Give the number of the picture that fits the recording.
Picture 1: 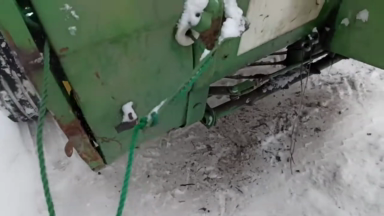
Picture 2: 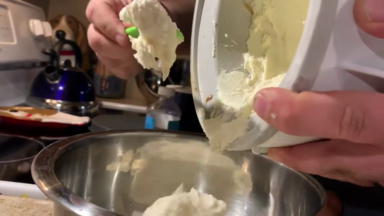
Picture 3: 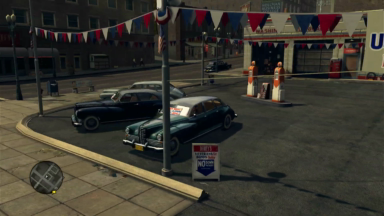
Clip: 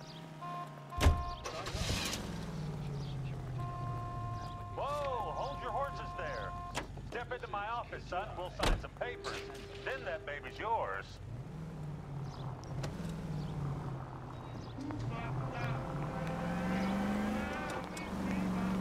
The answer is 3